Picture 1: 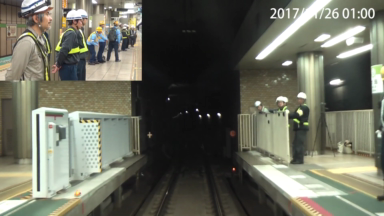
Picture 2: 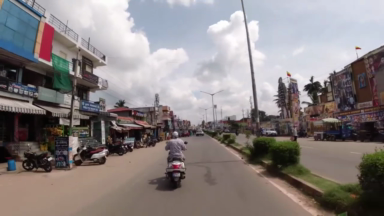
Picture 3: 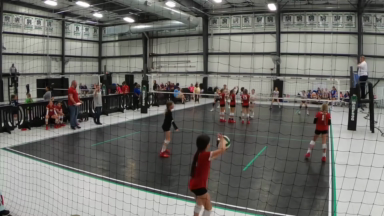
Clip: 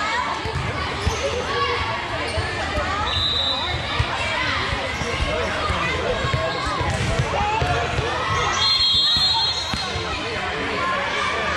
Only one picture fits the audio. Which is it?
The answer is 3